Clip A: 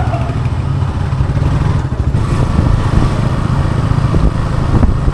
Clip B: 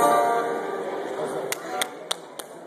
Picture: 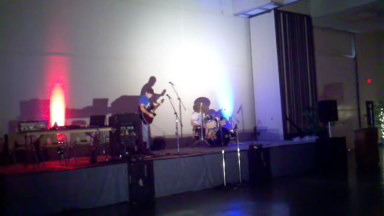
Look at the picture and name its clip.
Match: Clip B